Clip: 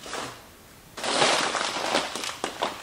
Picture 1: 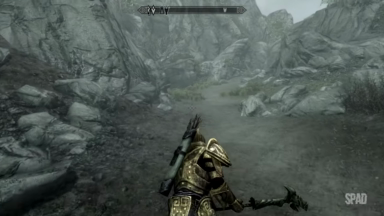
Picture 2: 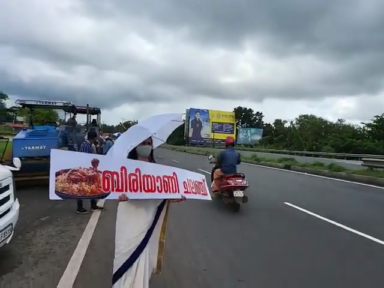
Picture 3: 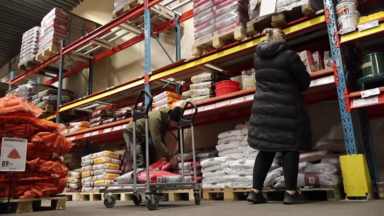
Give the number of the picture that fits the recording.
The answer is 3